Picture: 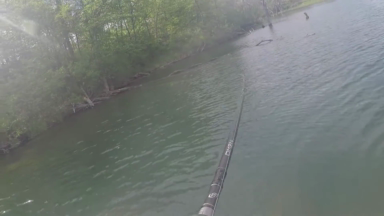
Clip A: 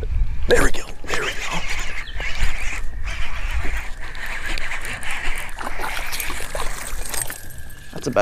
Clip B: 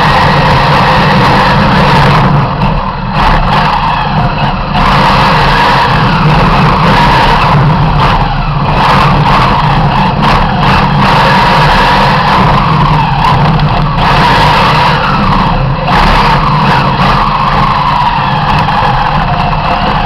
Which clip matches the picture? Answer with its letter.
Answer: A